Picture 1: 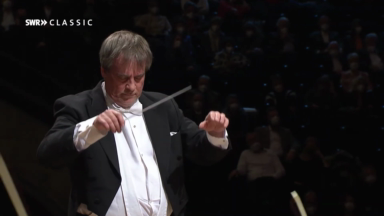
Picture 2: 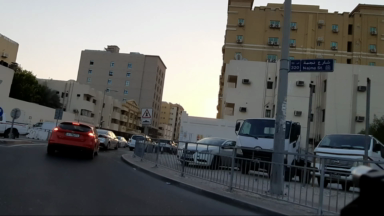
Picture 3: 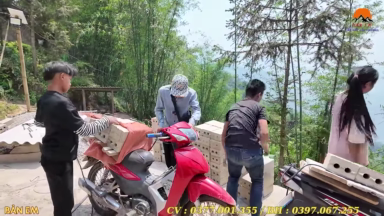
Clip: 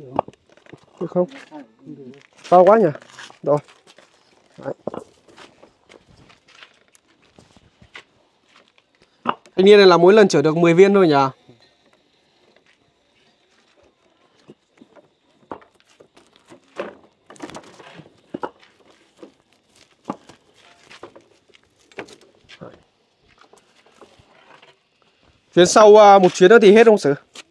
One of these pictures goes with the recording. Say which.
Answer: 3